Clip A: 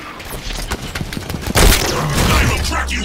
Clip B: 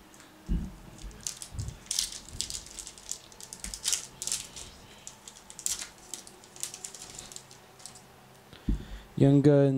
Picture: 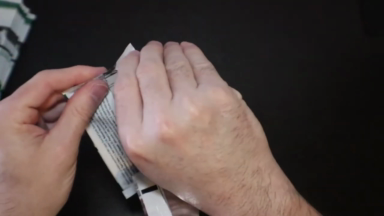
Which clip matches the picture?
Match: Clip B